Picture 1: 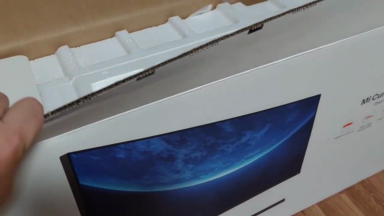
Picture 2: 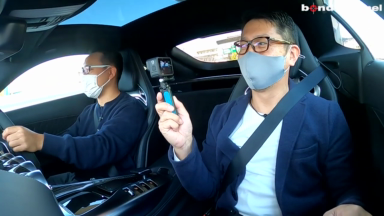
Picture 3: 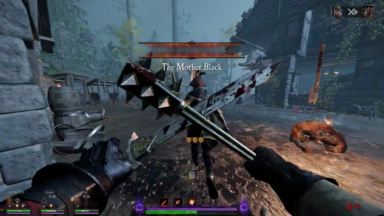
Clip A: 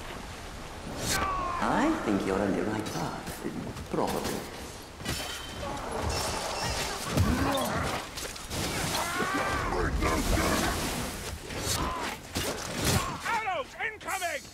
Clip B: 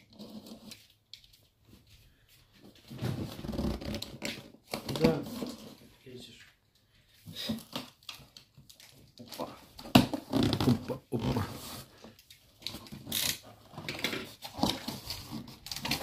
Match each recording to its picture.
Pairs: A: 3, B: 1